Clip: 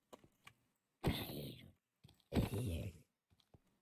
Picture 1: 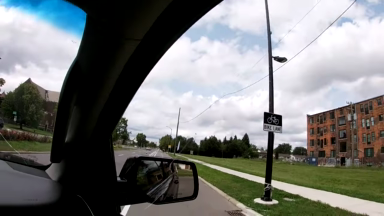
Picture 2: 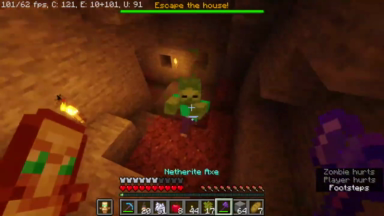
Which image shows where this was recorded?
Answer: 2